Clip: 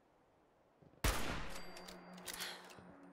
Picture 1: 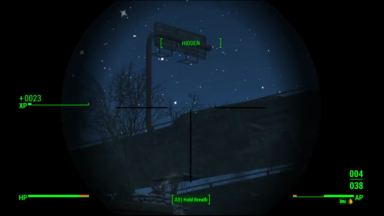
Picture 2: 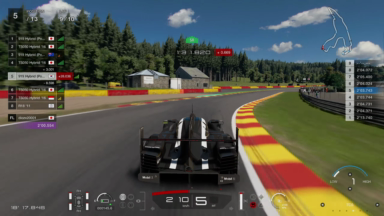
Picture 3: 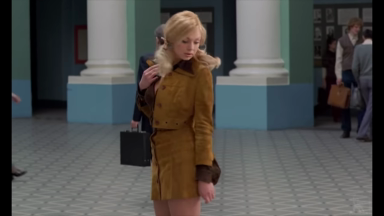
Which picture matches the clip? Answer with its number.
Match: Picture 1